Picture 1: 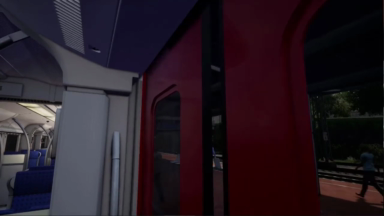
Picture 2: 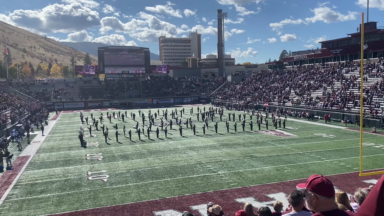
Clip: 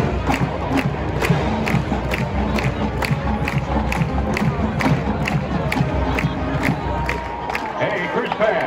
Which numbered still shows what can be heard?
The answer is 2